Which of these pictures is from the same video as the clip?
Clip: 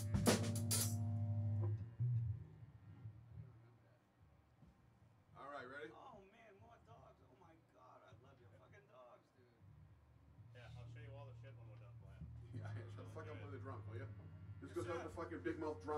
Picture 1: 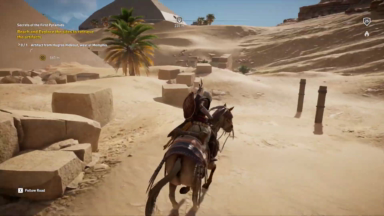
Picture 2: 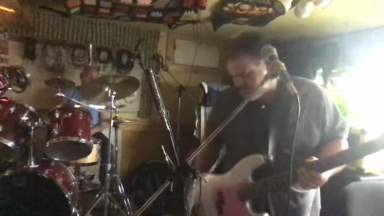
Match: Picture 2